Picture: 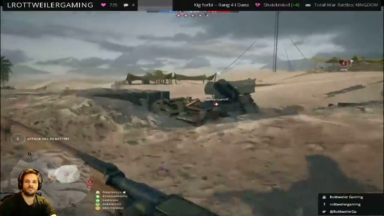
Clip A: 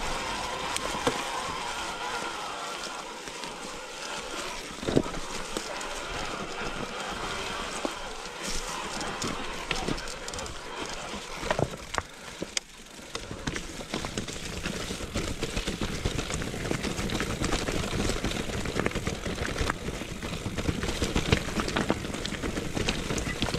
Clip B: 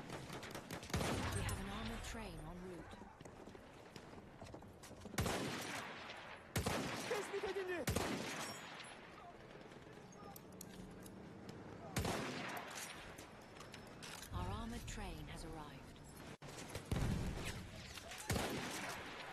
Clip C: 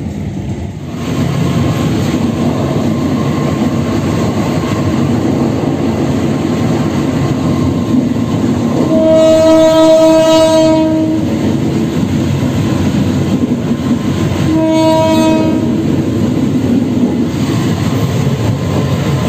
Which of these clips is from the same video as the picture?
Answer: B